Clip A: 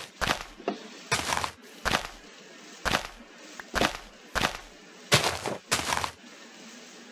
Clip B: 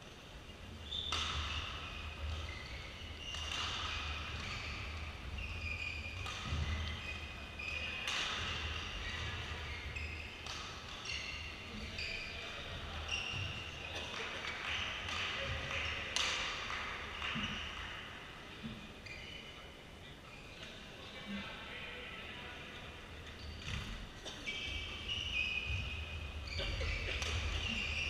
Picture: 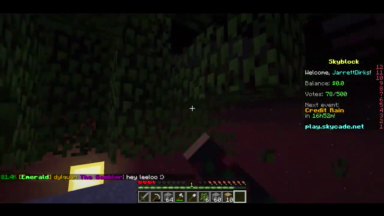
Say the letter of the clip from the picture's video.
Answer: A